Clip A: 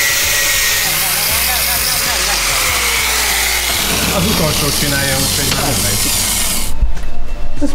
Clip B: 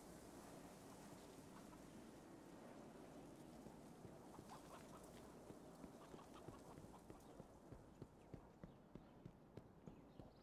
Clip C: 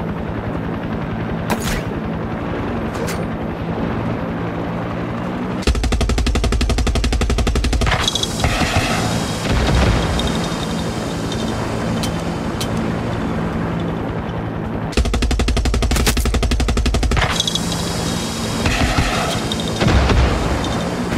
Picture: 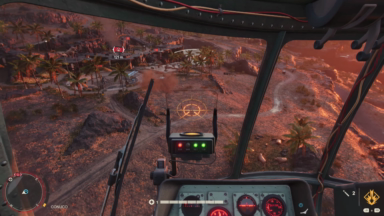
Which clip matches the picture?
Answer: C